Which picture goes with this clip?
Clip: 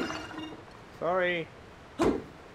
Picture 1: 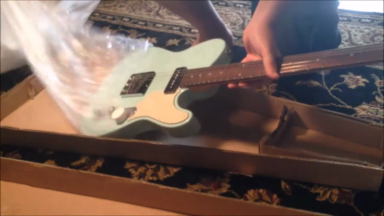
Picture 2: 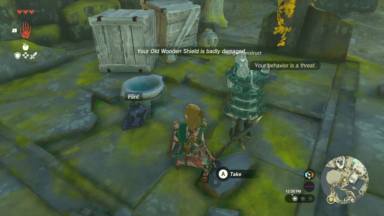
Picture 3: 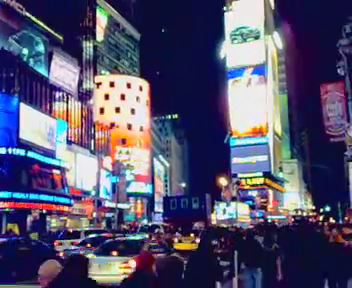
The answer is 2